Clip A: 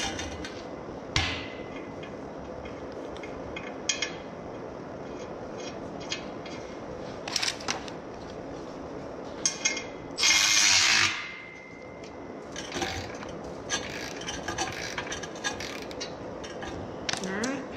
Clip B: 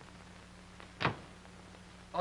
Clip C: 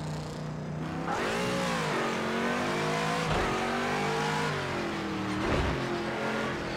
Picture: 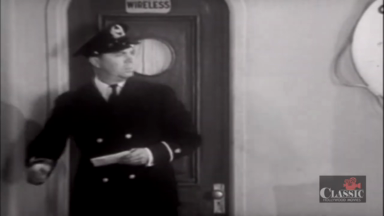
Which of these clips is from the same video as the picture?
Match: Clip B